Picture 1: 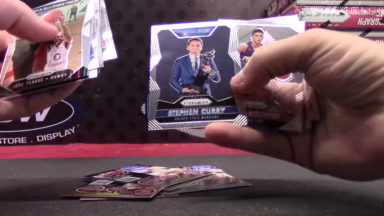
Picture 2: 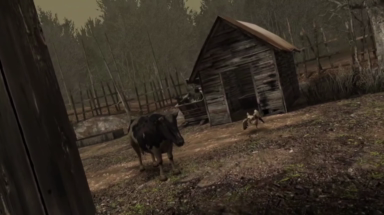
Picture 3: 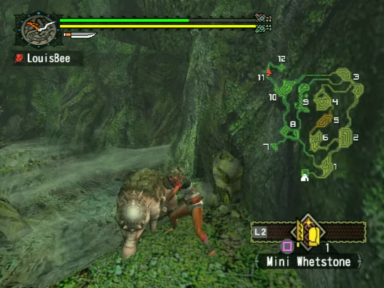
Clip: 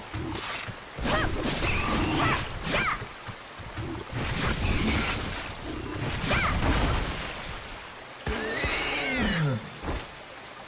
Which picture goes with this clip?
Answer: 3